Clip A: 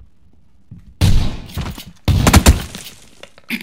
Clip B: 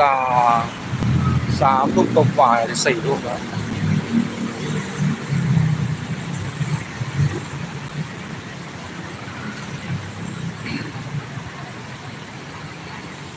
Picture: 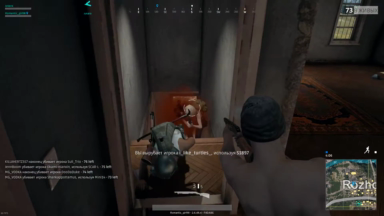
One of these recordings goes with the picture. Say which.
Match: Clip A